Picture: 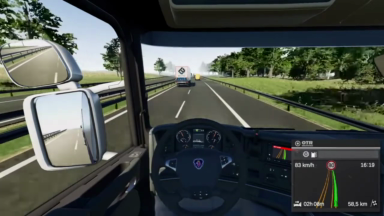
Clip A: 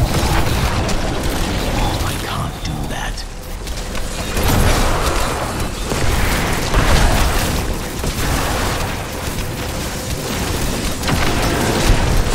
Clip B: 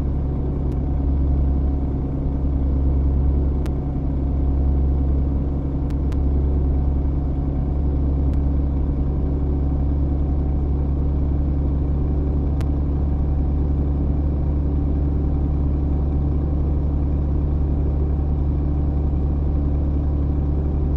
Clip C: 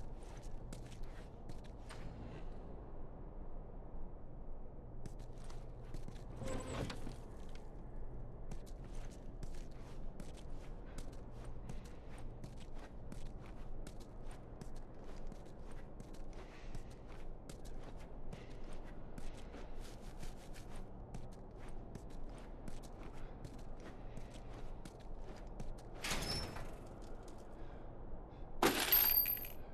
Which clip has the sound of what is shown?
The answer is B